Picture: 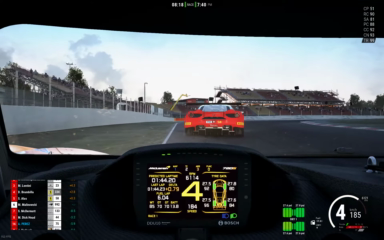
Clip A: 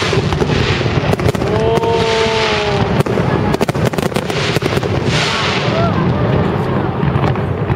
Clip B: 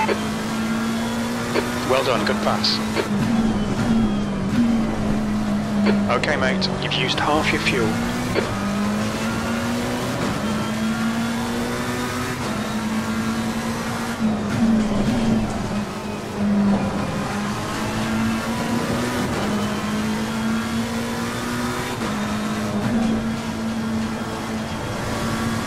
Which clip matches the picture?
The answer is B